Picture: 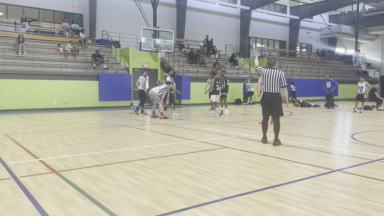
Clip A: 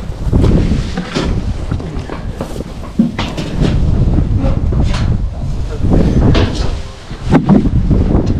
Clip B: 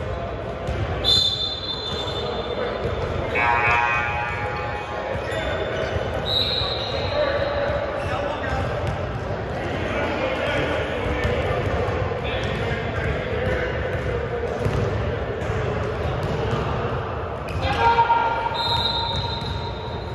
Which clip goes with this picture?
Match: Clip B